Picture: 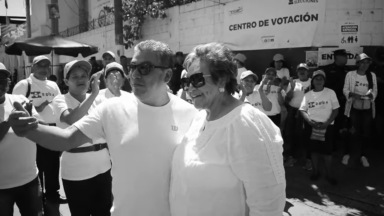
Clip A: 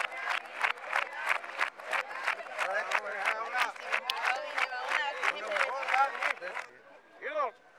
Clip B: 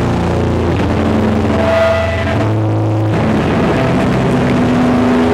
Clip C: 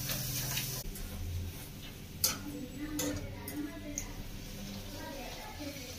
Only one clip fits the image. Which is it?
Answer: A